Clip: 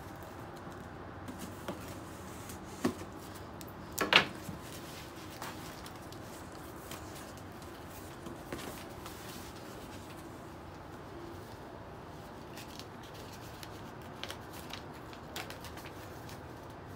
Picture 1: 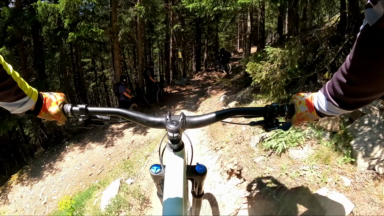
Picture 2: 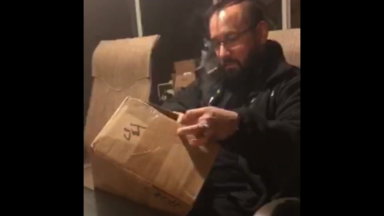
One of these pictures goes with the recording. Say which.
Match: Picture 2